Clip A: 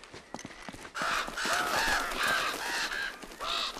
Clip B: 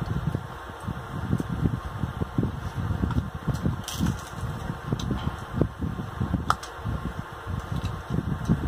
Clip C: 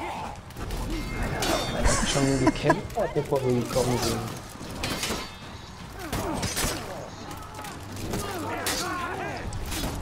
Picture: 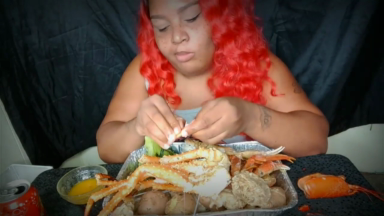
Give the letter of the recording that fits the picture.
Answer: B